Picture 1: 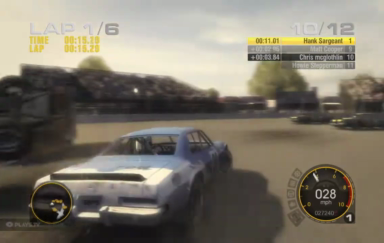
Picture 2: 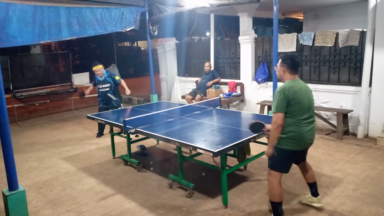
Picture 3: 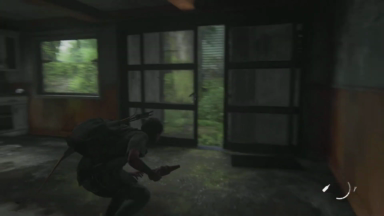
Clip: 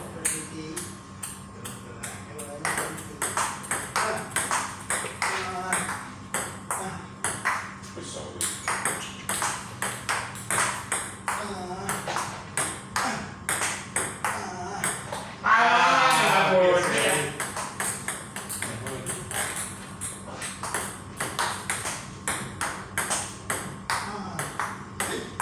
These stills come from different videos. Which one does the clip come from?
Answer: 2